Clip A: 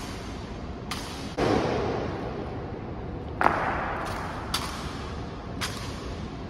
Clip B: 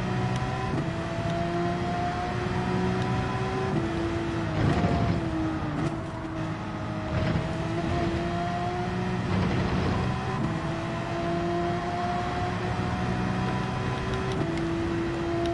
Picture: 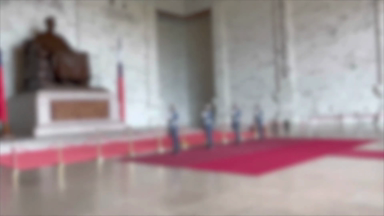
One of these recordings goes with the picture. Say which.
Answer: A